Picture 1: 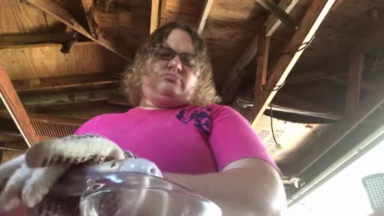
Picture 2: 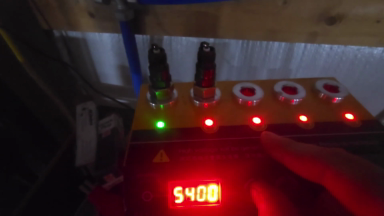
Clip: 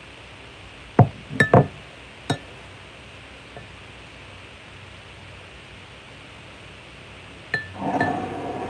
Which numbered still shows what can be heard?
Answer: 1